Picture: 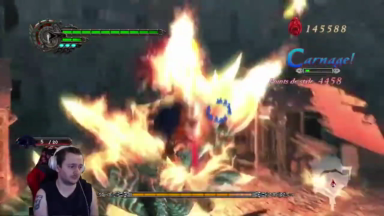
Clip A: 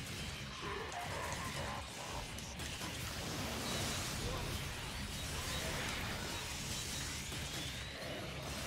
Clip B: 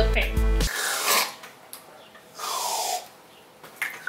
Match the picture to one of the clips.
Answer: A